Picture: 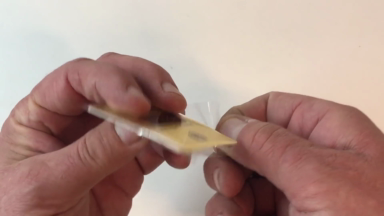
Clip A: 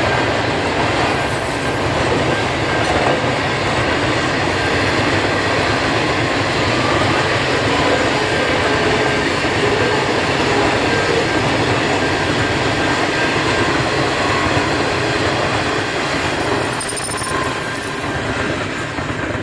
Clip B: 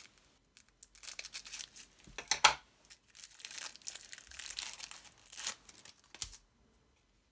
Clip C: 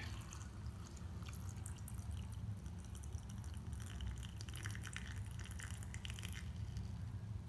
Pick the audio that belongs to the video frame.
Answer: B